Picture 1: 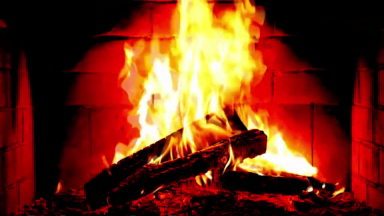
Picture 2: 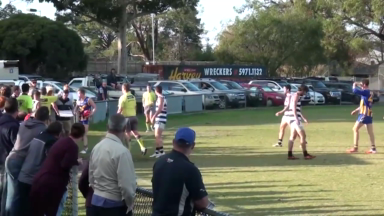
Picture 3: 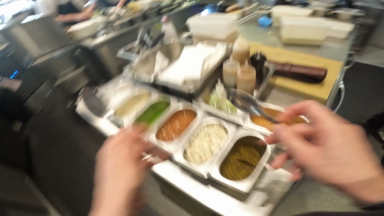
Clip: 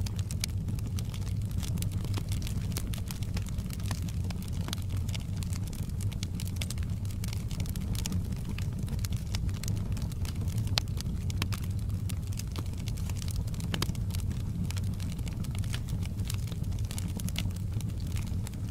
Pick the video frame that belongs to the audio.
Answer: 1